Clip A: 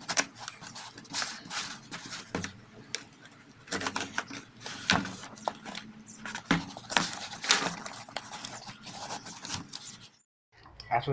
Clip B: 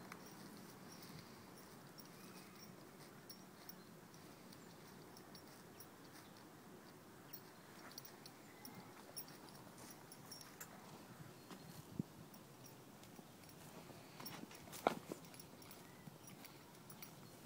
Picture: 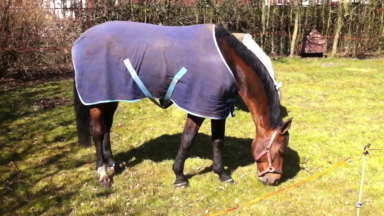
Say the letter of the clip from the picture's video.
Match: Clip B